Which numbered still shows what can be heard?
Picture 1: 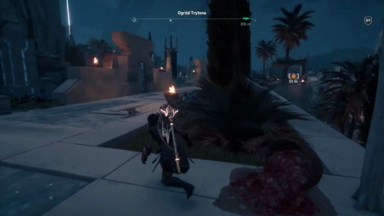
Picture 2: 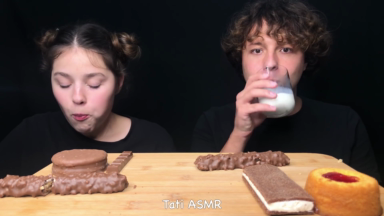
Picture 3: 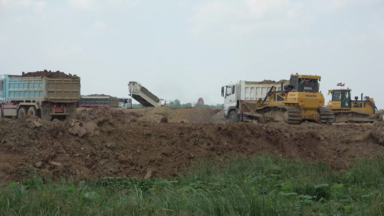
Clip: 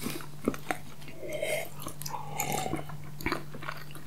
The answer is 2